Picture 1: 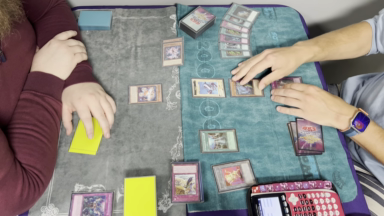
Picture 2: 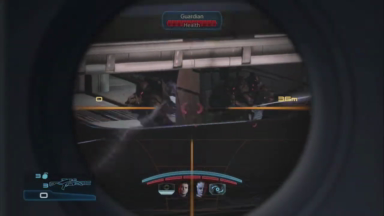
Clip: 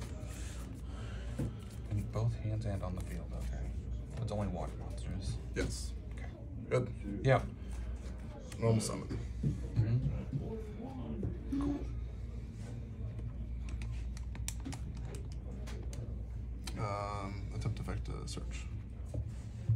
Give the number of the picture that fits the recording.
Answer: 1